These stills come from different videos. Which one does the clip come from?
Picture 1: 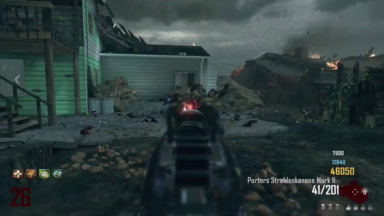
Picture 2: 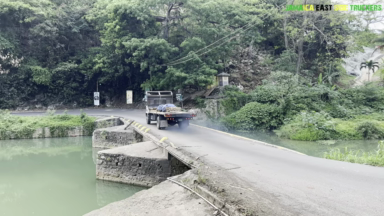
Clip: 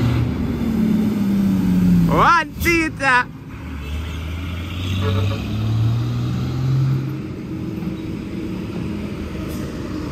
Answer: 2